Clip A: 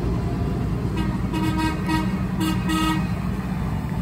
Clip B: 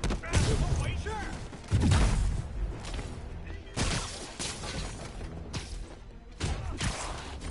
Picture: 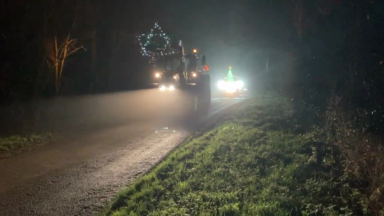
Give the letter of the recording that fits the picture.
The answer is A